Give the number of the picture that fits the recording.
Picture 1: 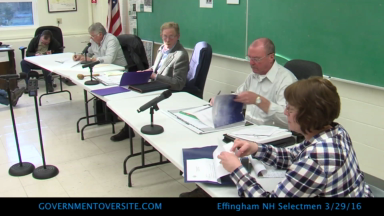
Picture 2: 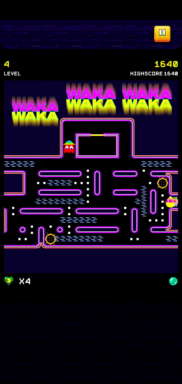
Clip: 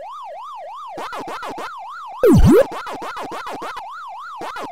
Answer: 2